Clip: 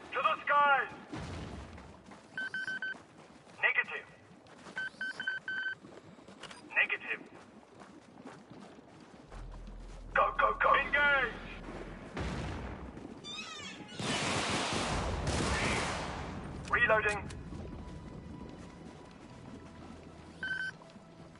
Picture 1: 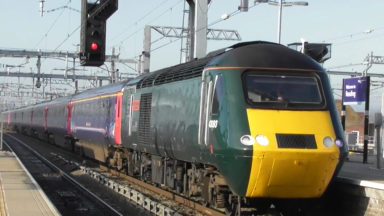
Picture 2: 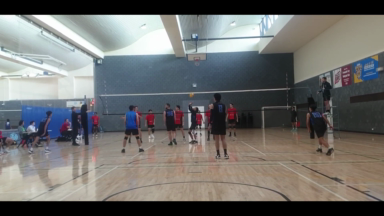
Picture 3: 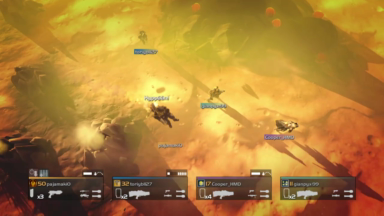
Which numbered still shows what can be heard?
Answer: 3